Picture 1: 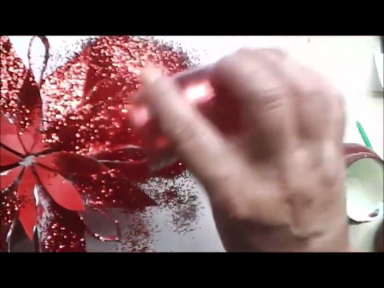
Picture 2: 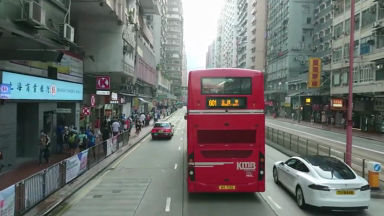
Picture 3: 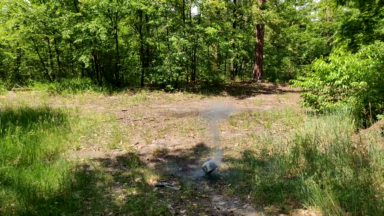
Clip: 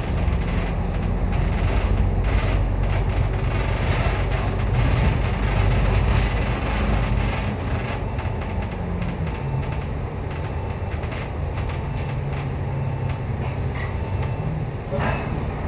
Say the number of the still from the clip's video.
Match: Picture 2